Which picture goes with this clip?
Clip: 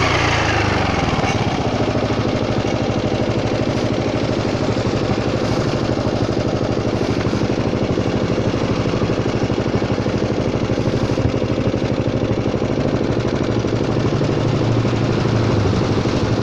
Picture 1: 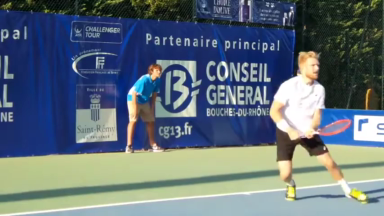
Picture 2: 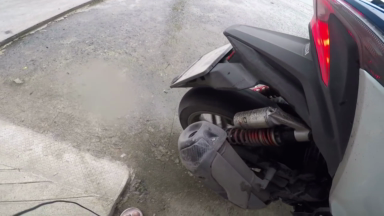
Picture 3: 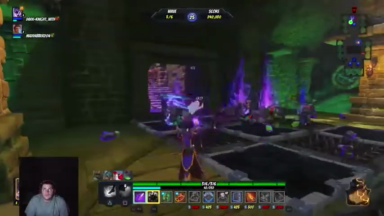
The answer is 2